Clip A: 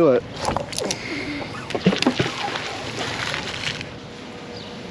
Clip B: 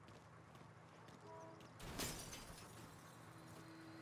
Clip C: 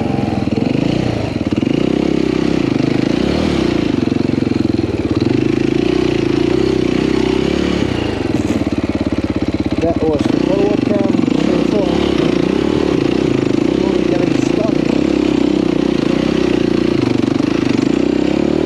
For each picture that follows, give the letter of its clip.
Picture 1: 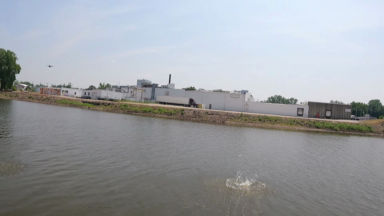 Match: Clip A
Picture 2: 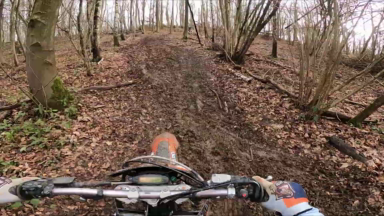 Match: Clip C